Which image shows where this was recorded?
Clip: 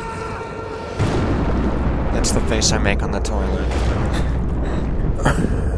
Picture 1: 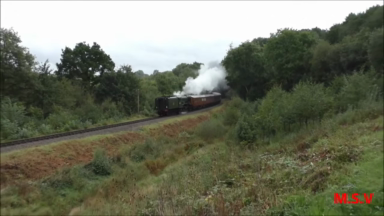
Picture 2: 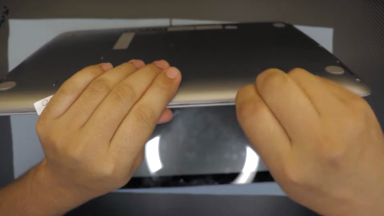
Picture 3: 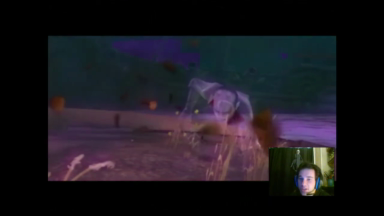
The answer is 3